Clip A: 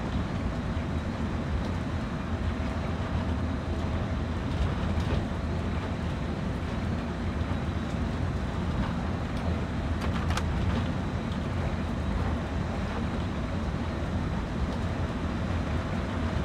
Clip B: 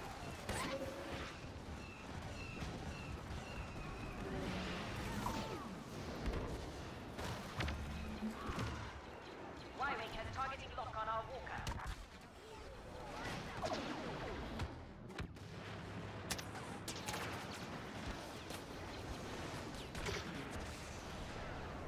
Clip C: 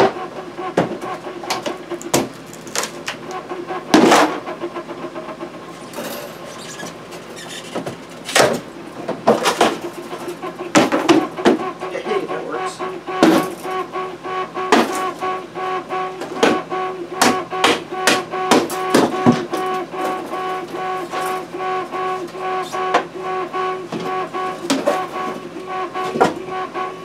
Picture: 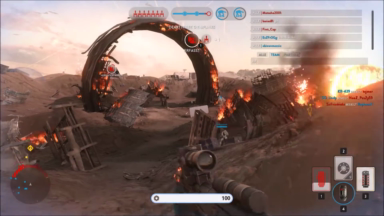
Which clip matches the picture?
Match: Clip B